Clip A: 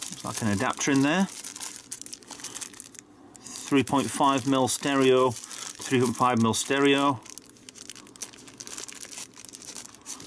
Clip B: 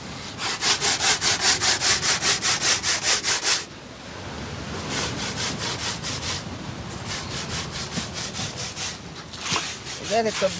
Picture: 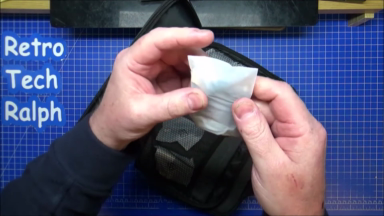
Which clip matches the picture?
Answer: A